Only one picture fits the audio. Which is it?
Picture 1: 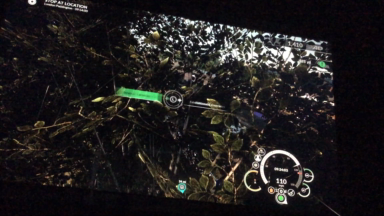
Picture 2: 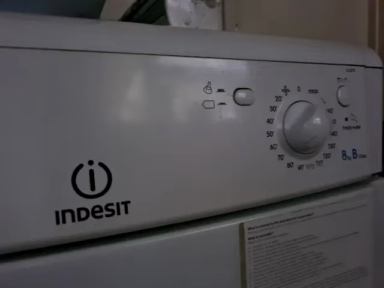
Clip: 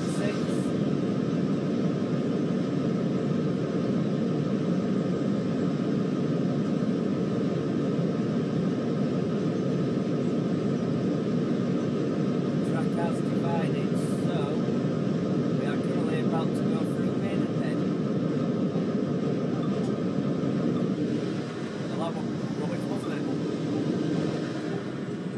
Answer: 1